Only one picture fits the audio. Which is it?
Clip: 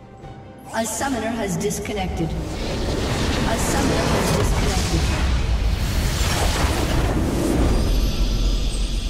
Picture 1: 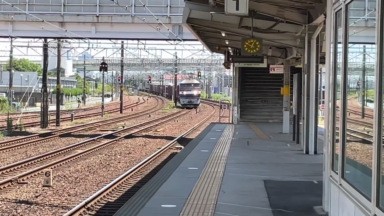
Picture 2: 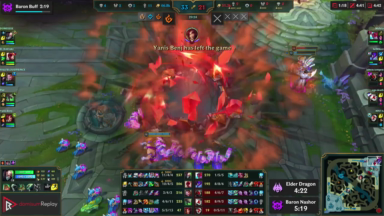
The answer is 2